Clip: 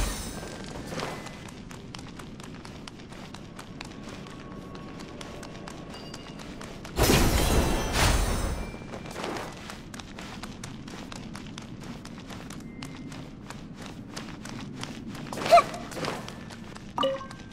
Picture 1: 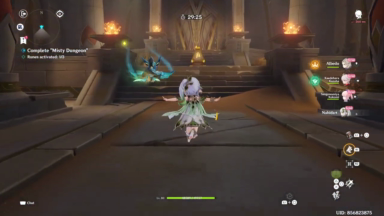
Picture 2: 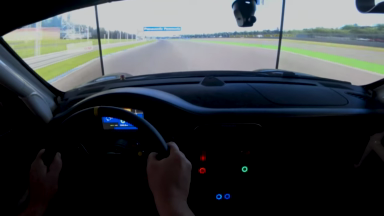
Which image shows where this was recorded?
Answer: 1